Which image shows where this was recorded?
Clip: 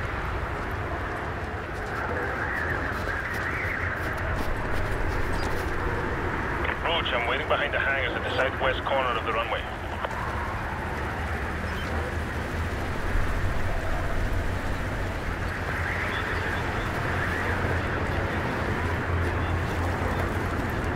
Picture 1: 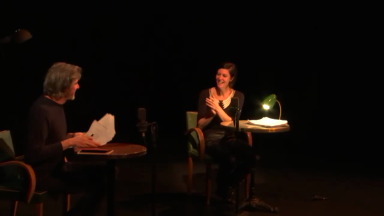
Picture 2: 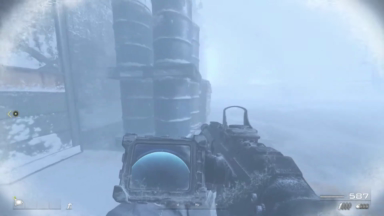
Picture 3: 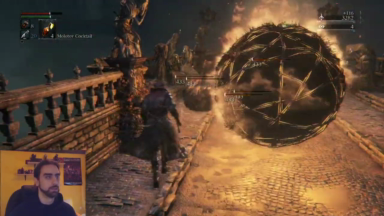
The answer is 2